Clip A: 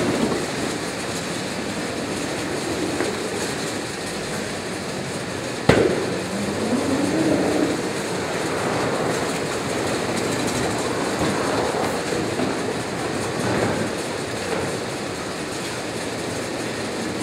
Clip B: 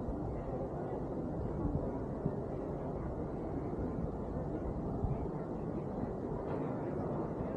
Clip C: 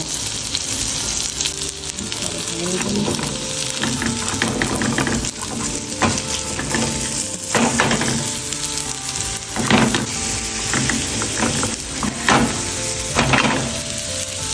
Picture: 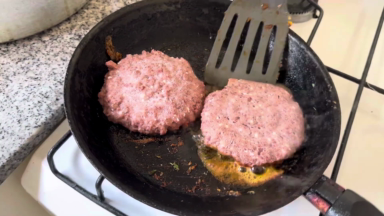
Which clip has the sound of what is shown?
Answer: C